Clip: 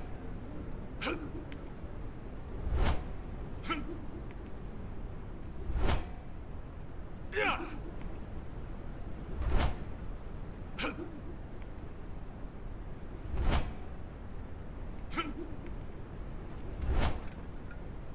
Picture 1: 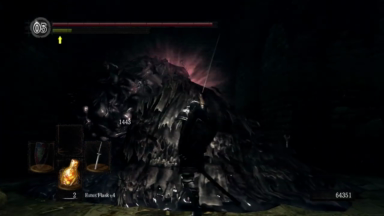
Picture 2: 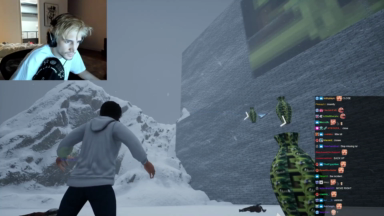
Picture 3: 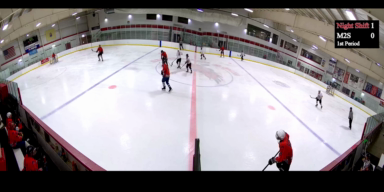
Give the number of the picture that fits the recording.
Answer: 2